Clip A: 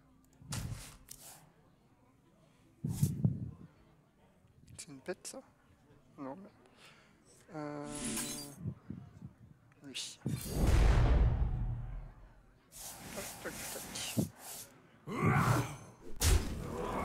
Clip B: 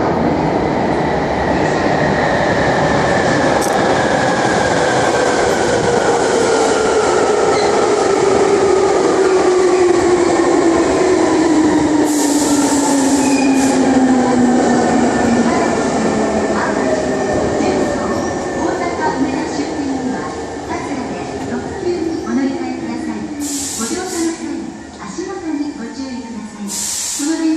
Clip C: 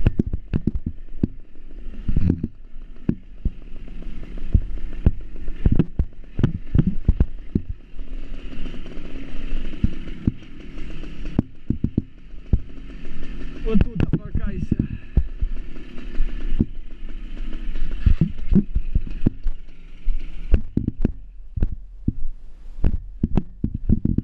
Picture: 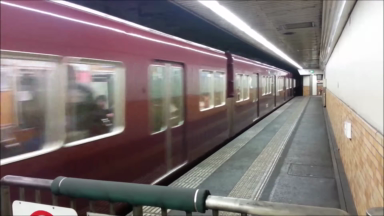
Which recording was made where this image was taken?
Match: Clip B